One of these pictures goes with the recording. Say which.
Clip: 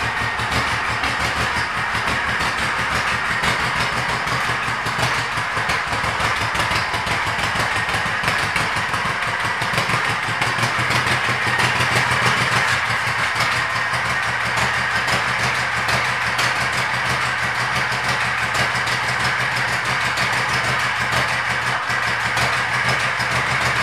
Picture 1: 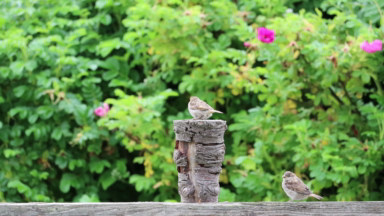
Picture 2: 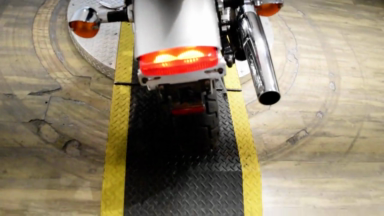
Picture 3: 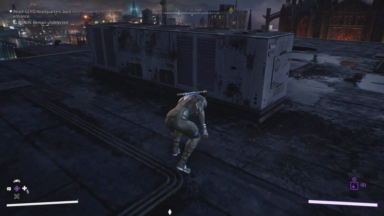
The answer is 2